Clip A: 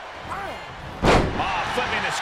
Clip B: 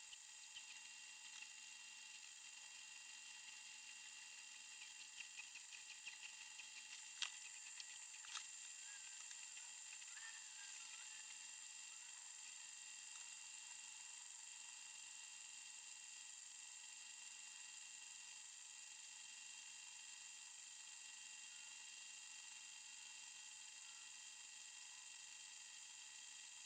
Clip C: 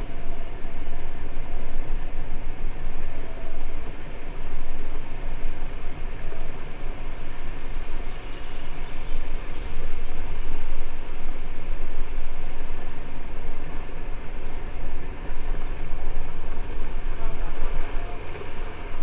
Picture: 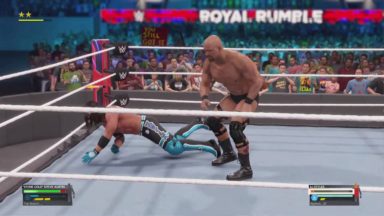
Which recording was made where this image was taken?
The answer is A